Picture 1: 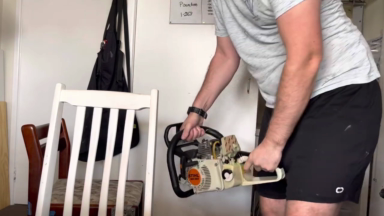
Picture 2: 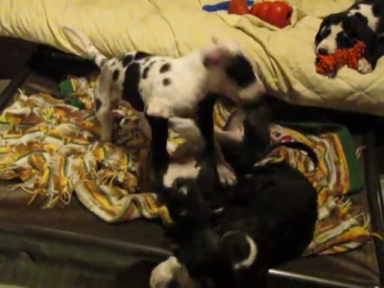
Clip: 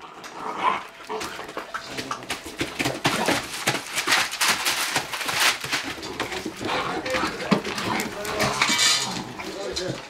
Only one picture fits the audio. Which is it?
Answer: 2